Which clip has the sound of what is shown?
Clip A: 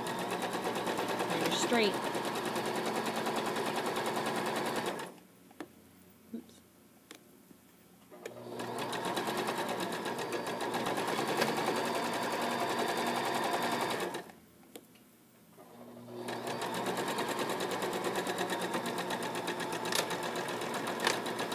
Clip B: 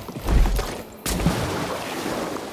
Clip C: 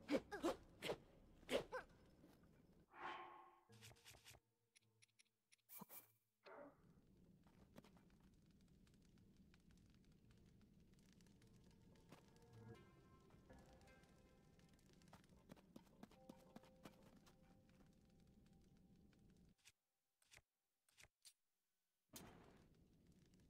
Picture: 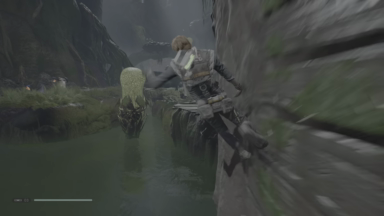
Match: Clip B